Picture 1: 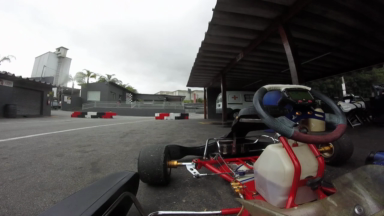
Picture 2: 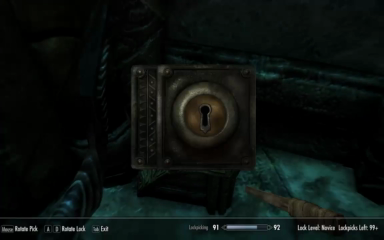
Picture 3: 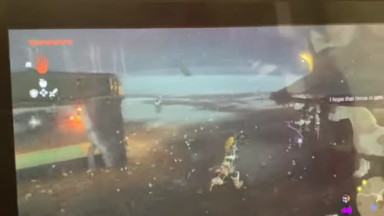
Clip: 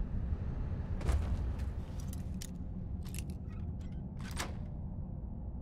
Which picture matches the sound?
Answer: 2